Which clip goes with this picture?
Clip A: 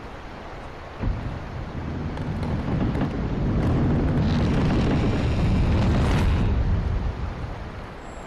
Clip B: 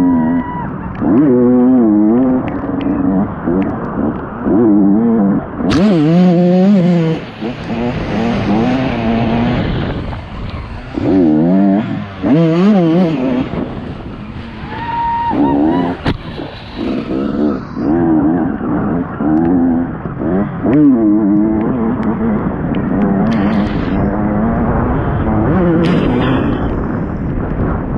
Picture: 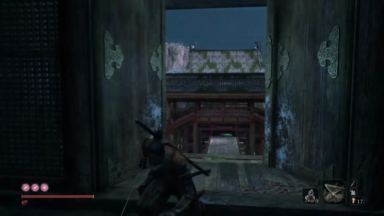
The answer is A